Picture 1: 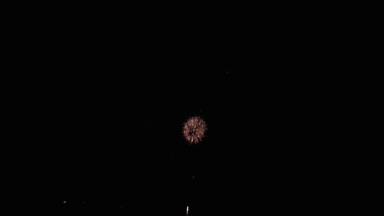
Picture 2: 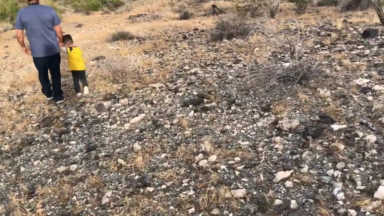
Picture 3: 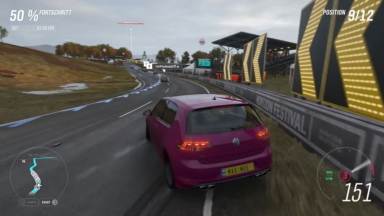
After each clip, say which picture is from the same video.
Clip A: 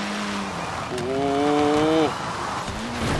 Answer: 3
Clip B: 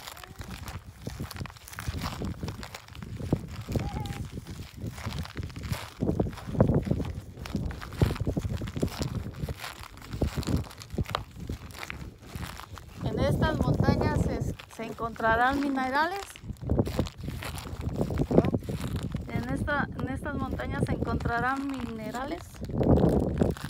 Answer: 2